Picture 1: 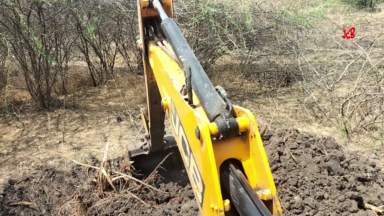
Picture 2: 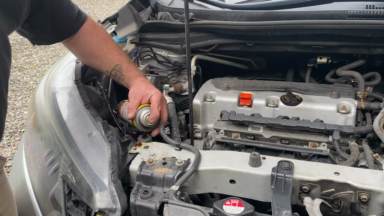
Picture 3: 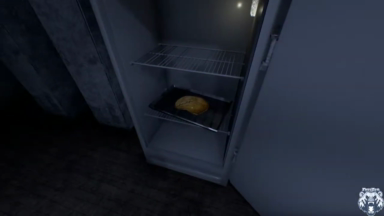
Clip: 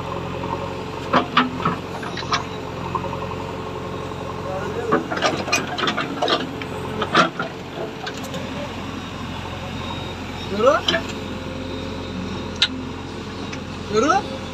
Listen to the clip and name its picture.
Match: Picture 1